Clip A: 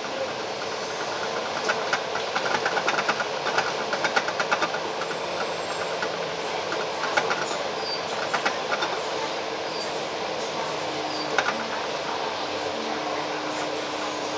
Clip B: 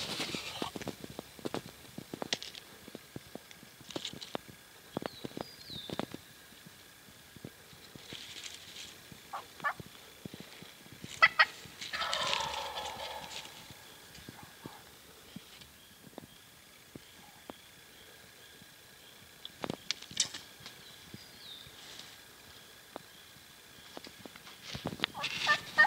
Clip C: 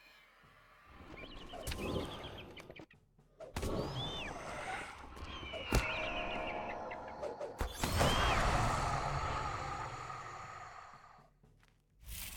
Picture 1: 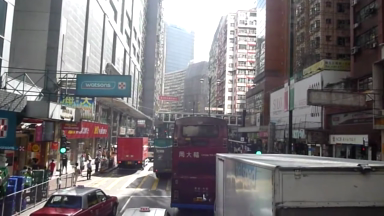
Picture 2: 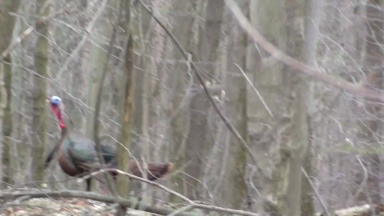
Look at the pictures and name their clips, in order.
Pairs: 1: A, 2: B